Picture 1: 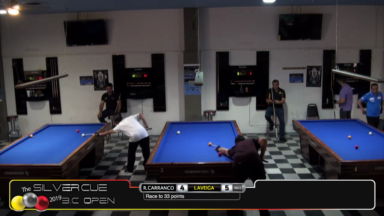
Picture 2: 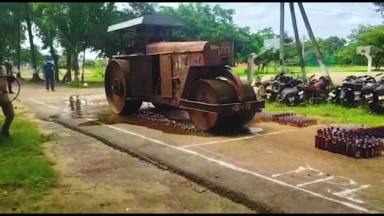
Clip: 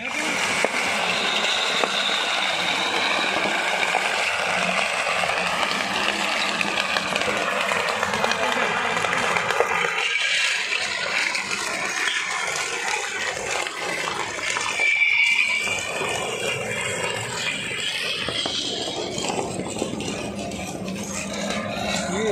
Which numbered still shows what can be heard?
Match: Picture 2